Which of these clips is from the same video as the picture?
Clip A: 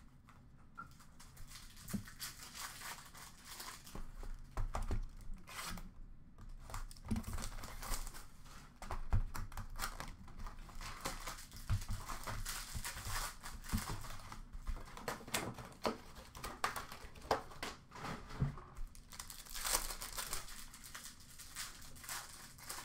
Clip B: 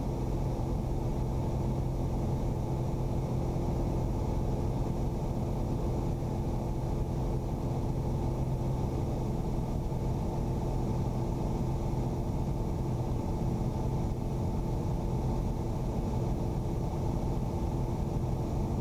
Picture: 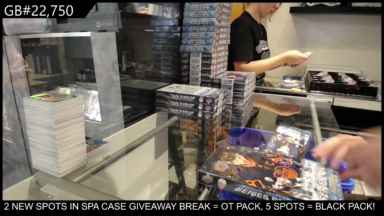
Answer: A